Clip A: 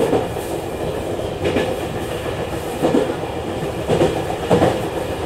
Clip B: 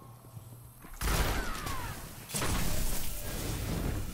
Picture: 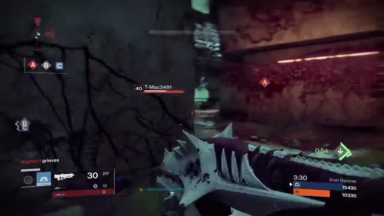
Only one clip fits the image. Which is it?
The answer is B